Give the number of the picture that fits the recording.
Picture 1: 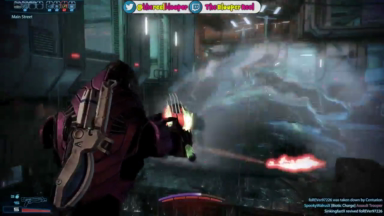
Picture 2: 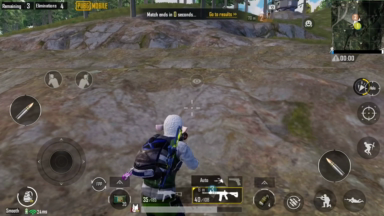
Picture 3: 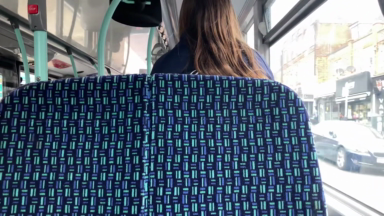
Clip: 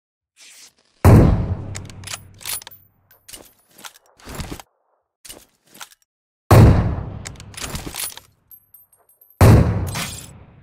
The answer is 2